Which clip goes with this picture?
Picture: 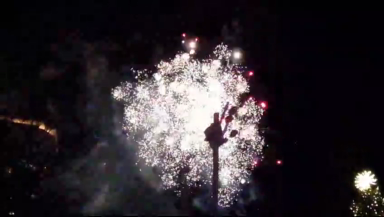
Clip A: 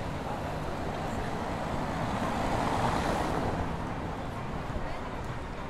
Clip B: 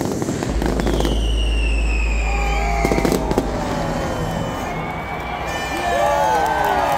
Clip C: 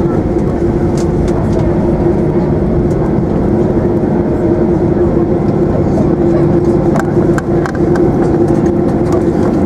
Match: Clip B